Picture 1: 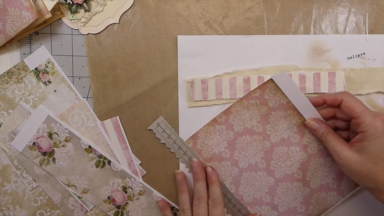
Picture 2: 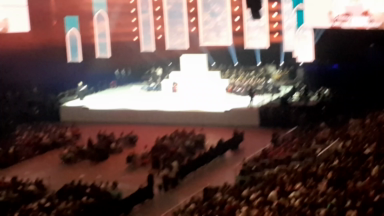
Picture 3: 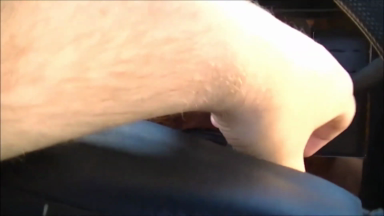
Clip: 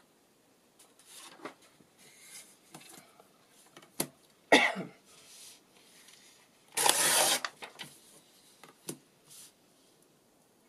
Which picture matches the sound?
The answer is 1